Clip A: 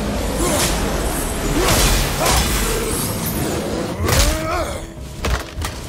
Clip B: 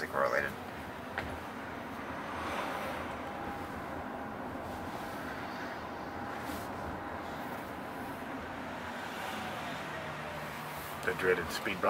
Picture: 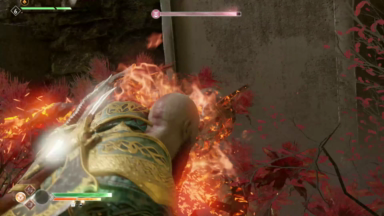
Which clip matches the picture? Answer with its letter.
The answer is A